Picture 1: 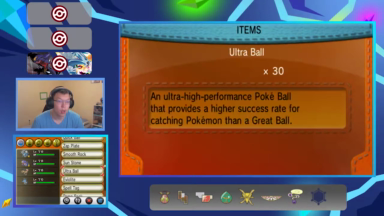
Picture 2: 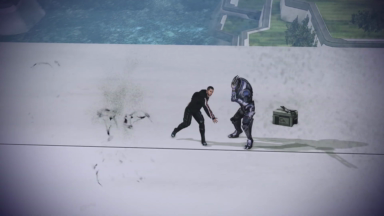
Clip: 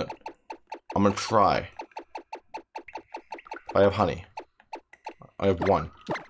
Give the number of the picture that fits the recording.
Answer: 1